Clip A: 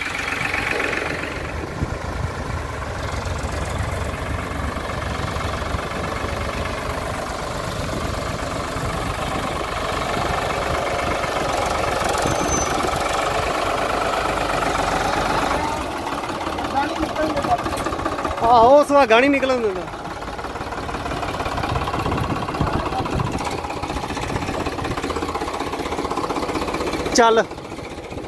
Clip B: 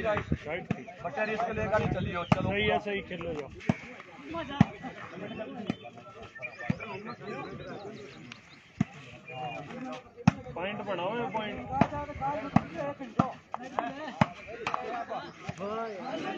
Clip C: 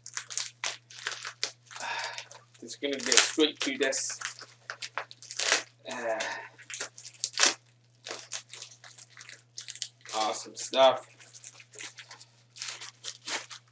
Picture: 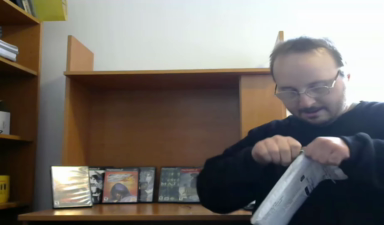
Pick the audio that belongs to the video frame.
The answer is C